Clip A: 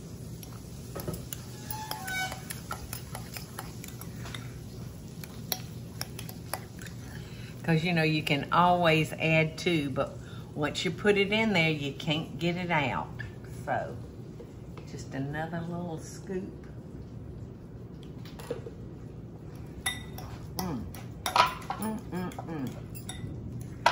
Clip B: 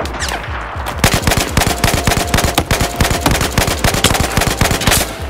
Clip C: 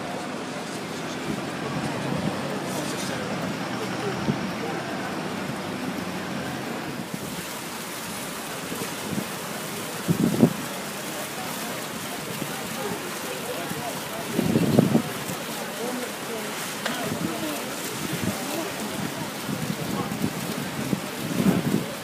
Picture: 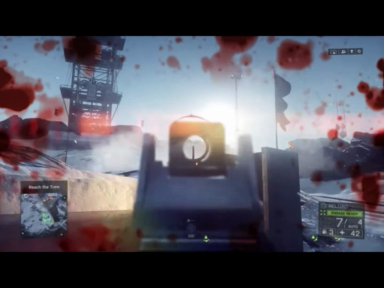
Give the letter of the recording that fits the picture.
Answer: B